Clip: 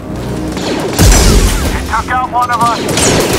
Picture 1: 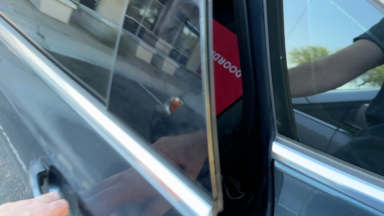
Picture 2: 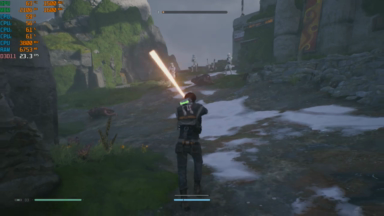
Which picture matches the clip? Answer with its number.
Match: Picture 2